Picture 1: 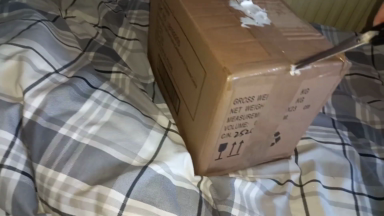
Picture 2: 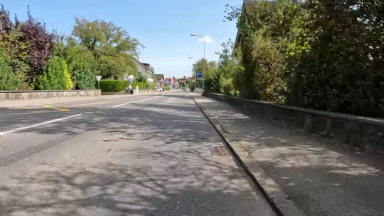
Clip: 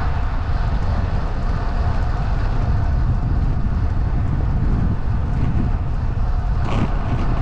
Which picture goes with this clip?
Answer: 2